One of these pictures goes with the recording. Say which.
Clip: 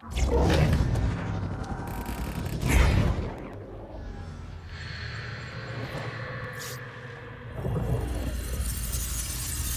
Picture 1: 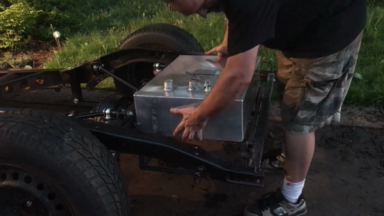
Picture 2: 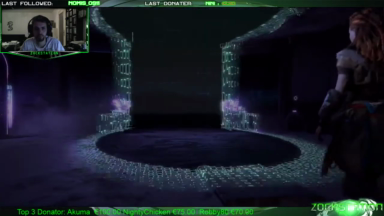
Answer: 2